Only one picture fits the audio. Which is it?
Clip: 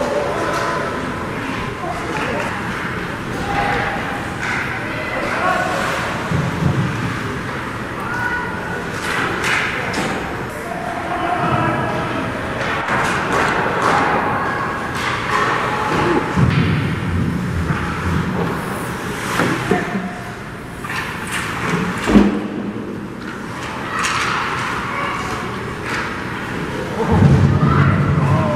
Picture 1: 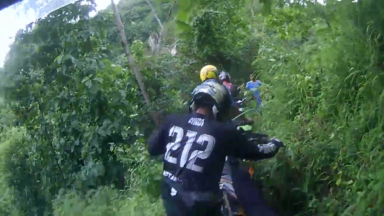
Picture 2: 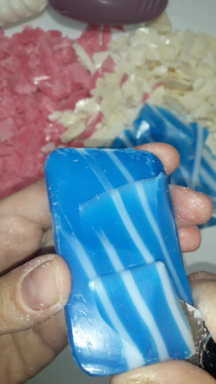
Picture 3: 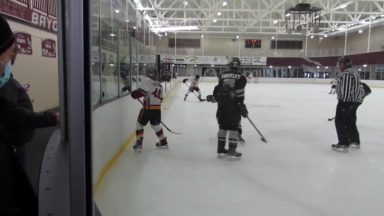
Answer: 3